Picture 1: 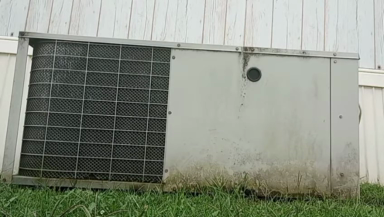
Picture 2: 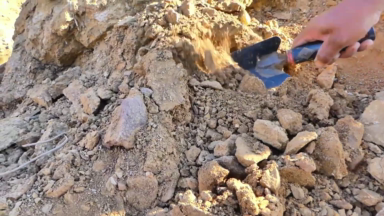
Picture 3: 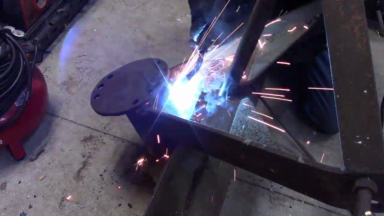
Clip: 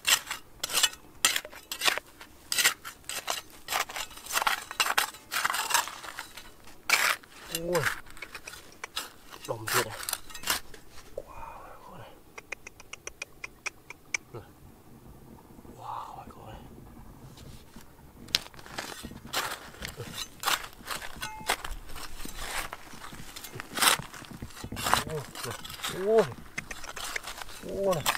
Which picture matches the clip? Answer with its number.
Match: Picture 2